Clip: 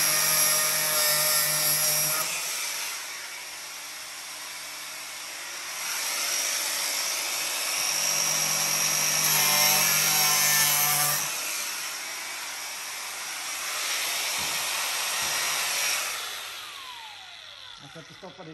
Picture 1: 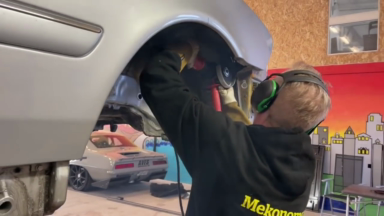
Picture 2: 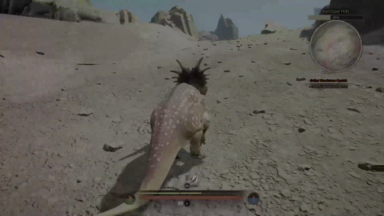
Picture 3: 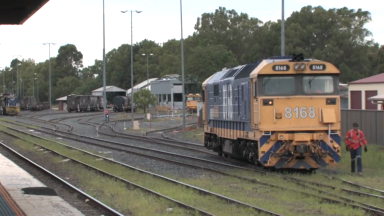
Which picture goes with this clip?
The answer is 1